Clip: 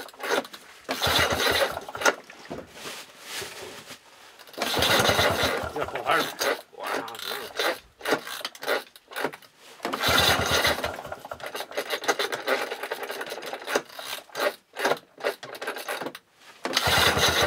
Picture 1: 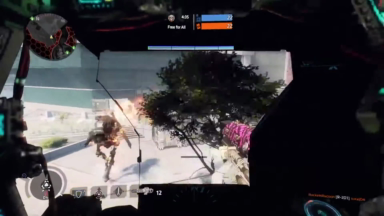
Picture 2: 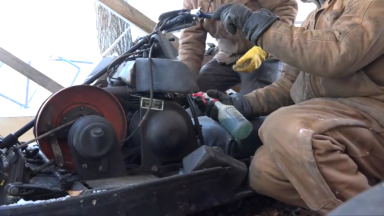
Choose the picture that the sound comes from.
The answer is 2